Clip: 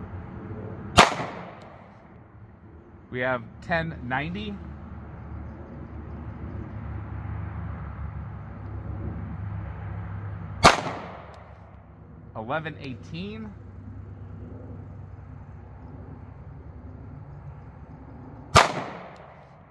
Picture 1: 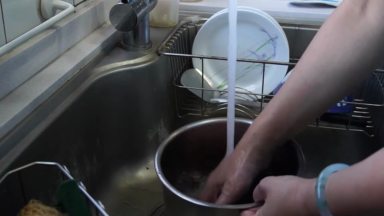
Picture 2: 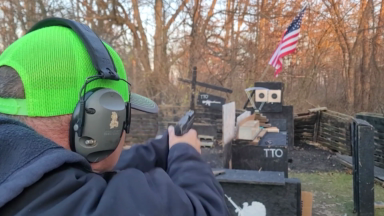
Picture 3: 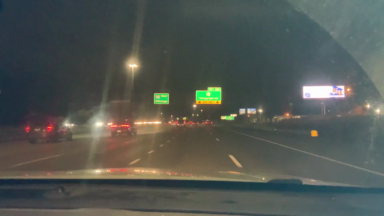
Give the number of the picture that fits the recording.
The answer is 2